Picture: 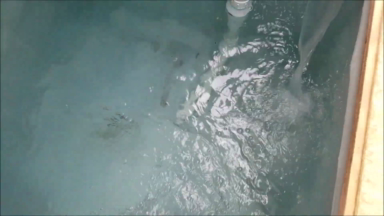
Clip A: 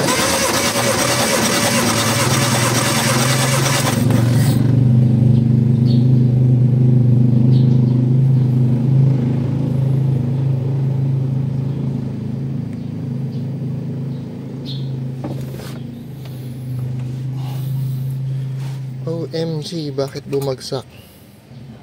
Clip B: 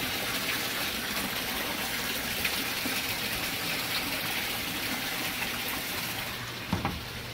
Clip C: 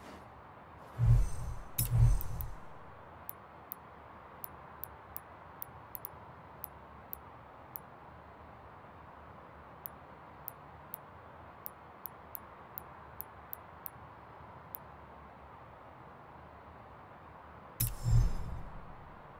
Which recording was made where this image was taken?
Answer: B